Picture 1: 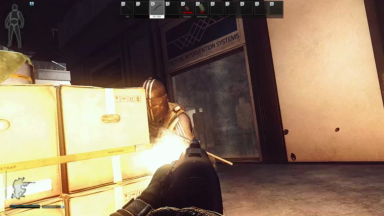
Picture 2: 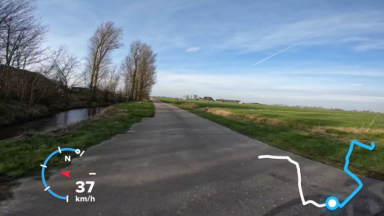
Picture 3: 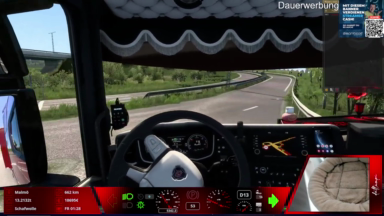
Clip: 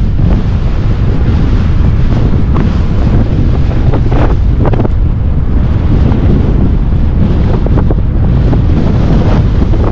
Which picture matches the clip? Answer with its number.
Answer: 2